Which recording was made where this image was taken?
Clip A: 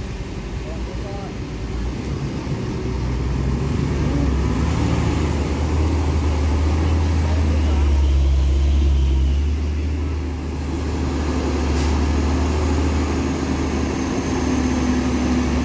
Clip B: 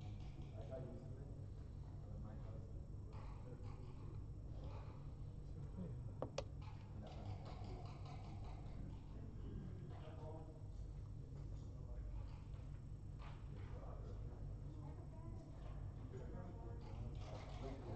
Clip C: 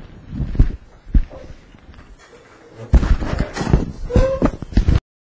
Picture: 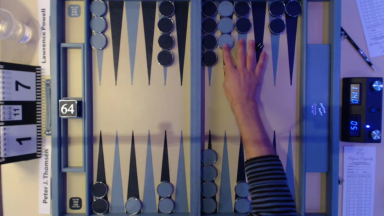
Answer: B